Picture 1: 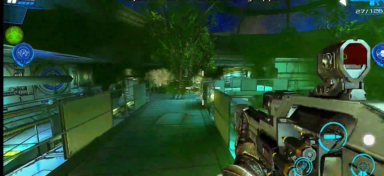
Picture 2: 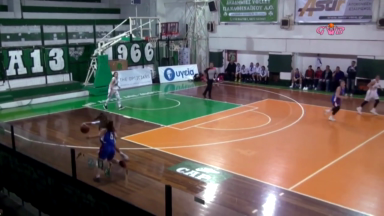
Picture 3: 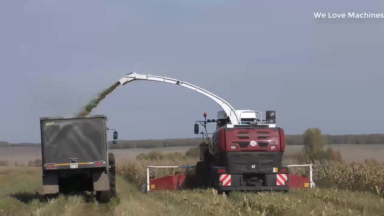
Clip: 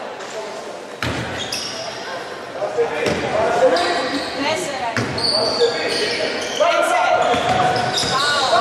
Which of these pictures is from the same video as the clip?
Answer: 2